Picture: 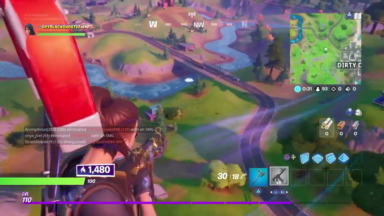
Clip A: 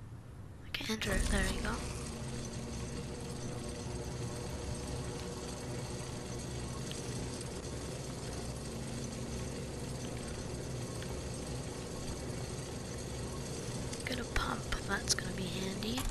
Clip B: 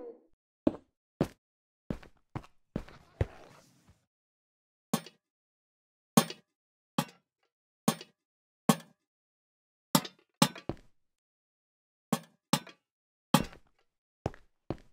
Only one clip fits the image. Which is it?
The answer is A